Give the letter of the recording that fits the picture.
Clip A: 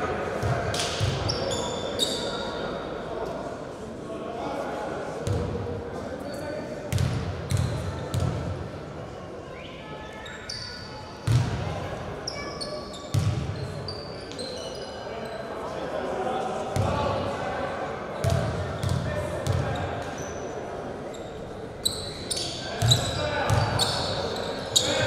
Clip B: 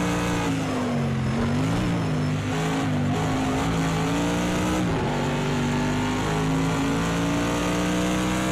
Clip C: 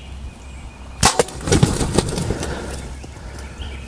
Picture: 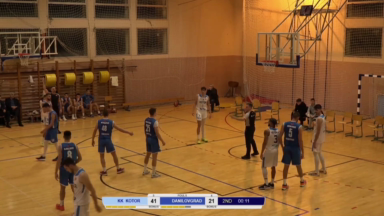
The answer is A